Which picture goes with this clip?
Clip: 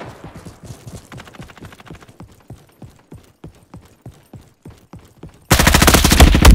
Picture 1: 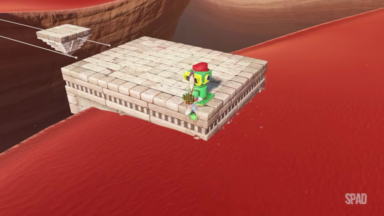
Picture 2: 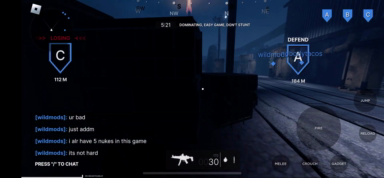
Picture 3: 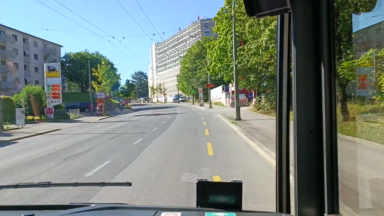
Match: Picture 2